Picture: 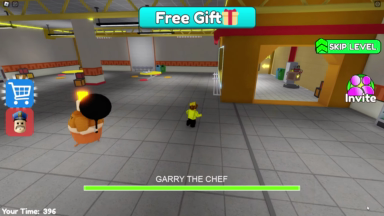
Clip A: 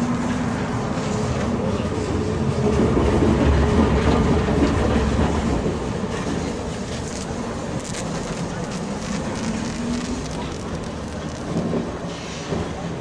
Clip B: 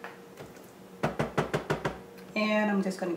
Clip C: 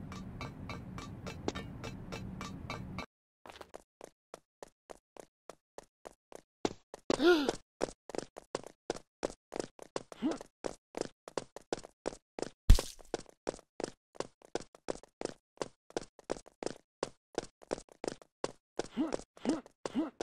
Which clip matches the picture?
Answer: C